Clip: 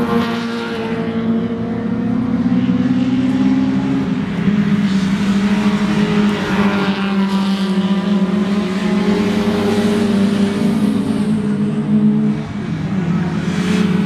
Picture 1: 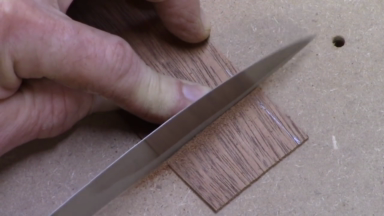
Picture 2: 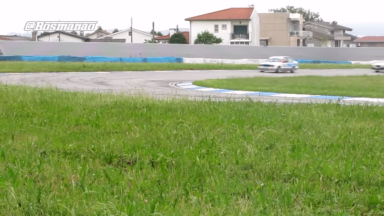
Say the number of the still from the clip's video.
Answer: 2